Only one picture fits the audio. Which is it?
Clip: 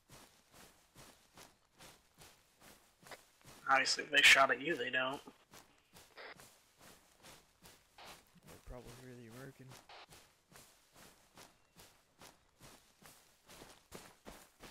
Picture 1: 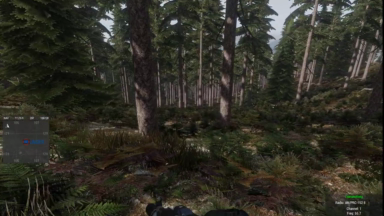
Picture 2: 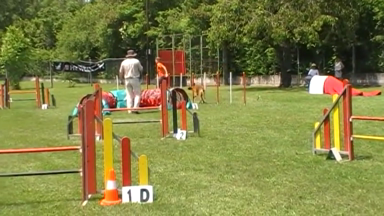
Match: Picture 1